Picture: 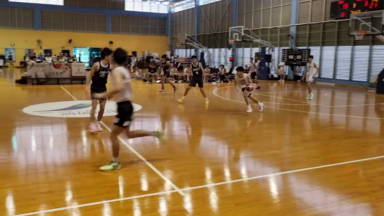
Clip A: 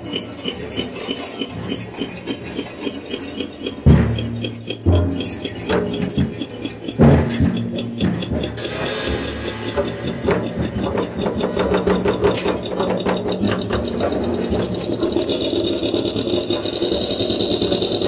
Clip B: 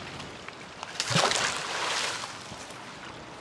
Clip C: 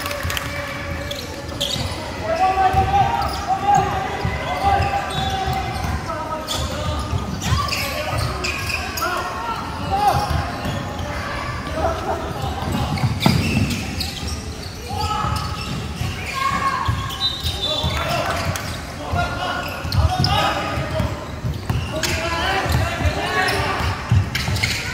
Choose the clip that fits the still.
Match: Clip C